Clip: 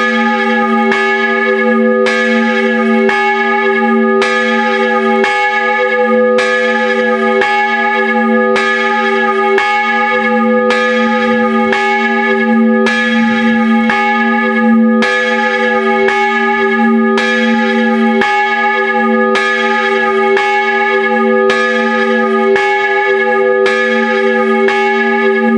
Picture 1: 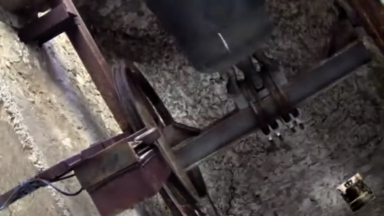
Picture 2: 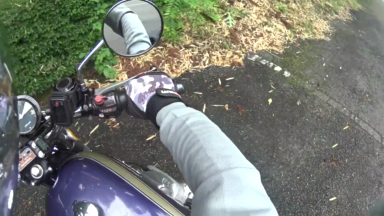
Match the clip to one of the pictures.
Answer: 1